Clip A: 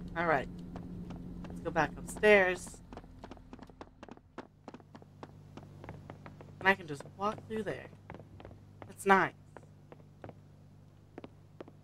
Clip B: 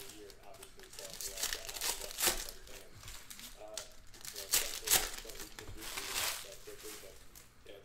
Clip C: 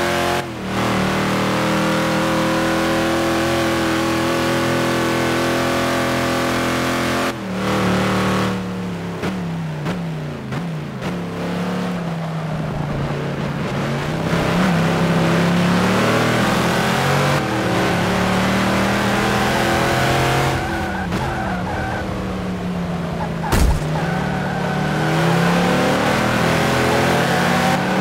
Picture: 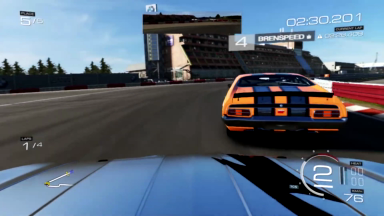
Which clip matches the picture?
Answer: C